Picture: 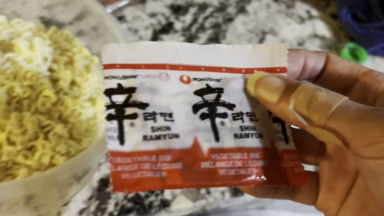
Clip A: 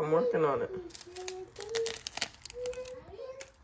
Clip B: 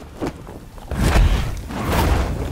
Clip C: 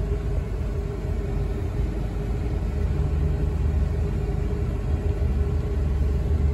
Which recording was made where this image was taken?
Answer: A